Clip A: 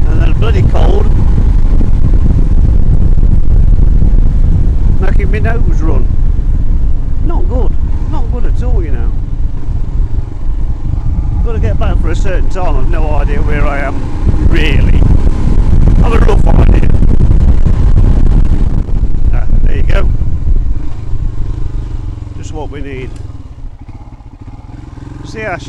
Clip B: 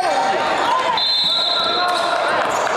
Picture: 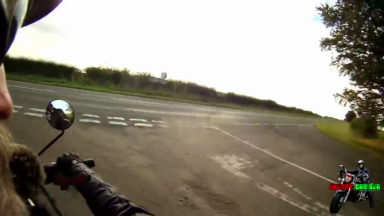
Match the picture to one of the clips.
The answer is A